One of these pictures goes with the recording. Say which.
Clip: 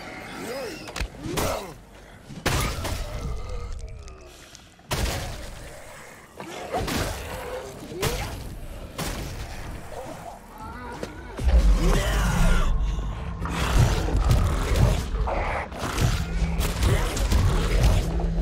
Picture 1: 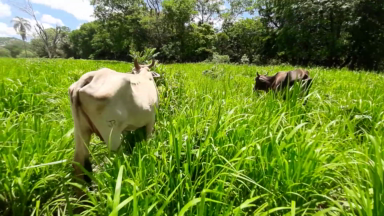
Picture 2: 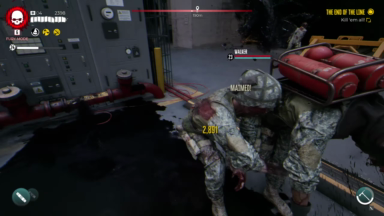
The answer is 2